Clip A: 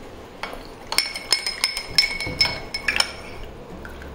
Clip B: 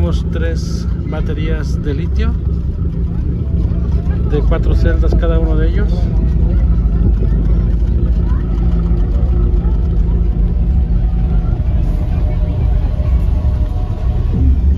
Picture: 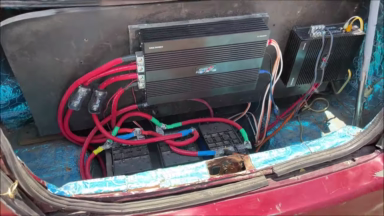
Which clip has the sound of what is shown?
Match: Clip B